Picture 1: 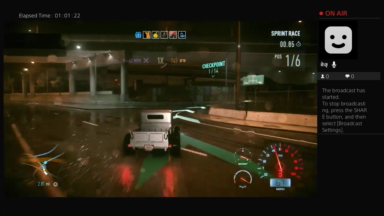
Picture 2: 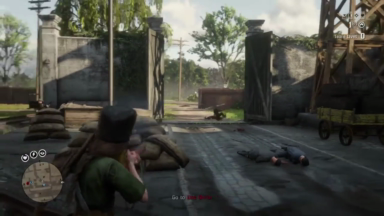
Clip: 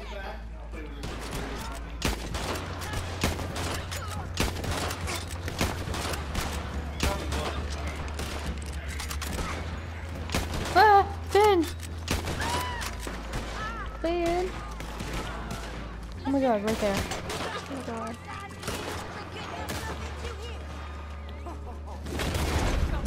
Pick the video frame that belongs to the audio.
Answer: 2